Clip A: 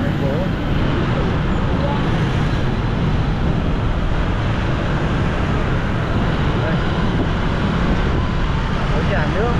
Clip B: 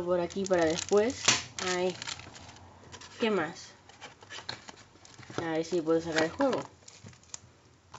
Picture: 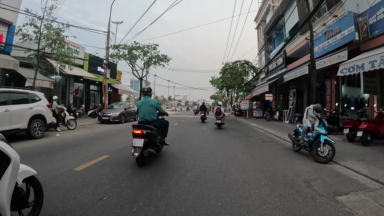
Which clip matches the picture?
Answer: A